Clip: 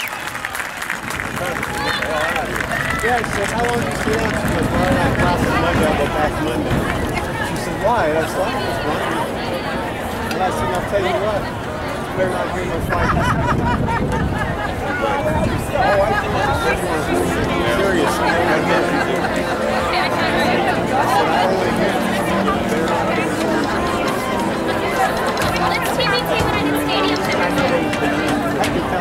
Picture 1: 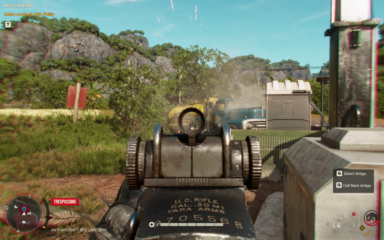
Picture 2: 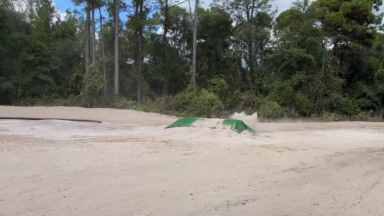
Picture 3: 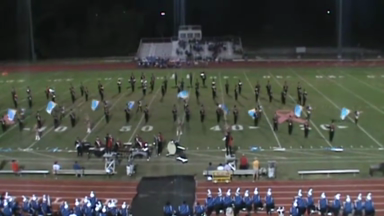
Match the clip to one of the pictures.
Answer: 3